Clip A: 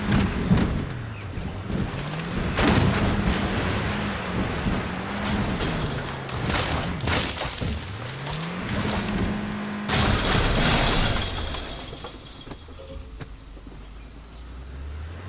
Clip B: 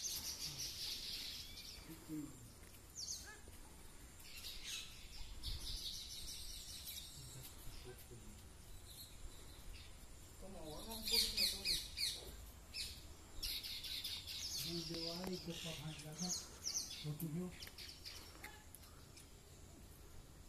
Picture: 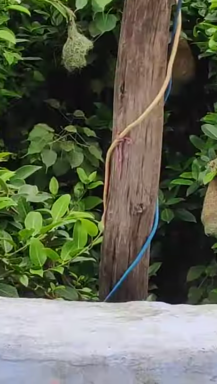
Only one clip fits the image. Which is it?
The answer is B